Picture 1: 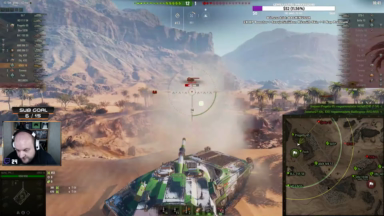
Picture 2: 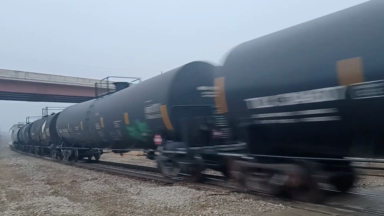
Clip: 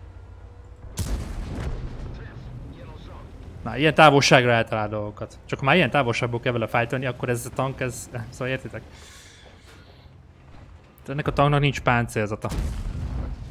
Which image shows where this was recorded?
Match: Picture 1